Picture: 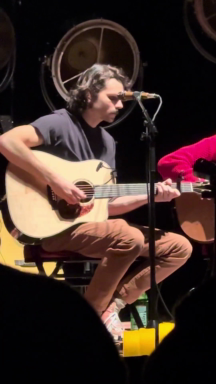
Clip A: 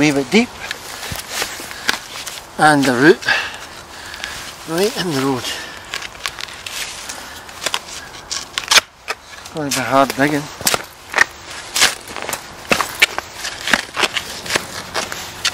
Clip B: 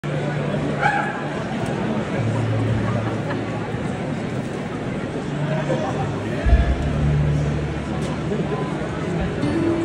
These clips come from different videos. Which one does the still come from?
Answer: B